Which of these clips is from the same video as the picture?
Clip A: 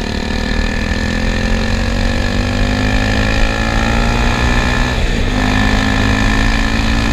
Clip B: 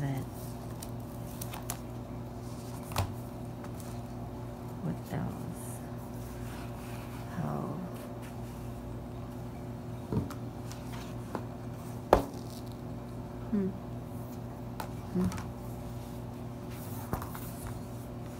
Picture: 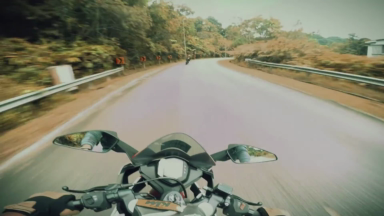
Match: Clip A